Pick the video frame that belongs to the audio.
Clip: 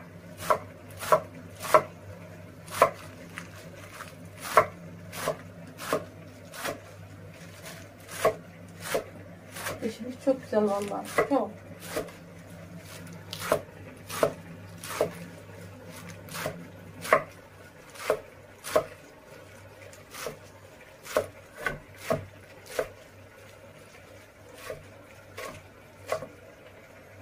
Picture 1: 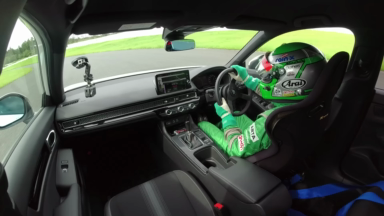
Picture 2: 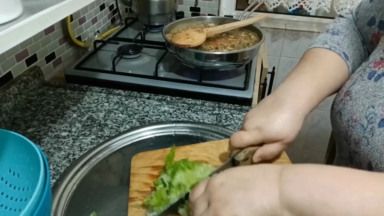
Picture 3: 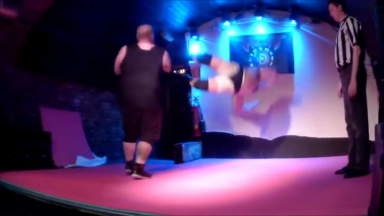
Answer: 2